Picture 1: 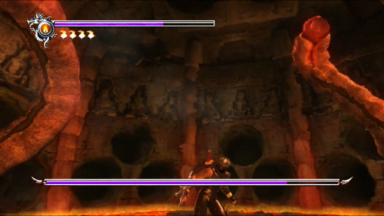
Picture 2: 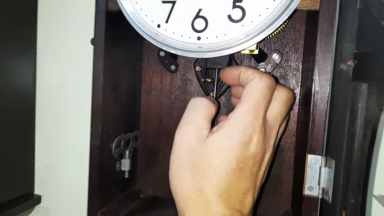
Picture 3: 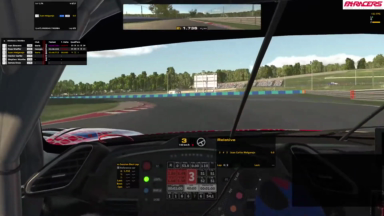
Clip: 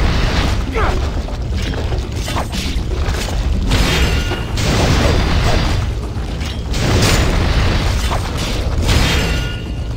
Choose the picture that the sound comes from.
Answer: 1